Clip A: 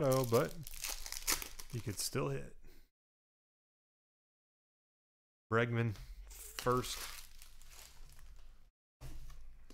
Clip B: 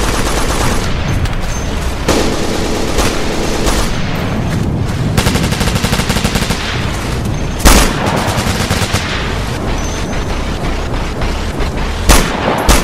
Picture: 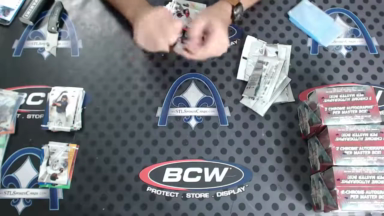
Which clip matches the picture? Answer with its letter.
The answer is A